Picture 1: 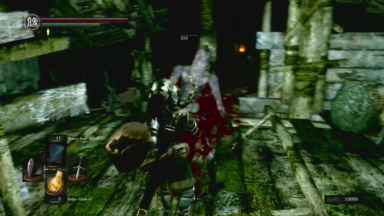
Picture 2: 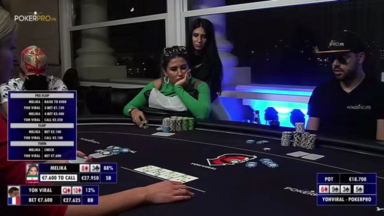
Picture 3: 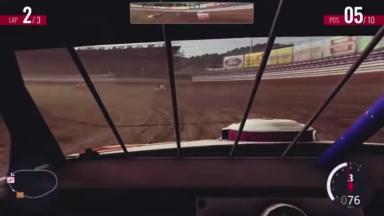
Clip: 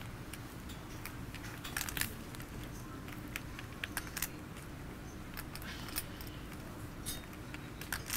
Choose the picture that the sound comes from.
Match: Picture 2